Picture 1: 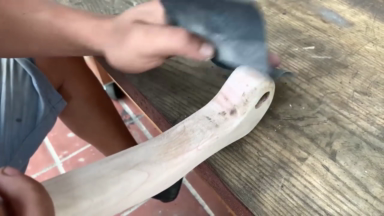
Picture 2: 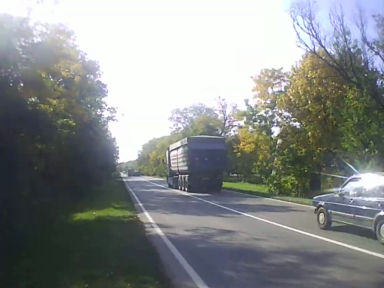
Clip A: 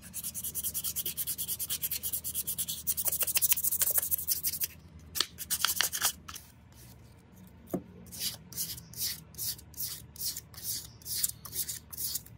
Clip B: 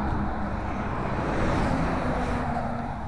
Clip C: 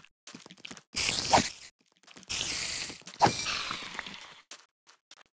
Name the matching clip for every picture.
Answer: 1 A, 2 B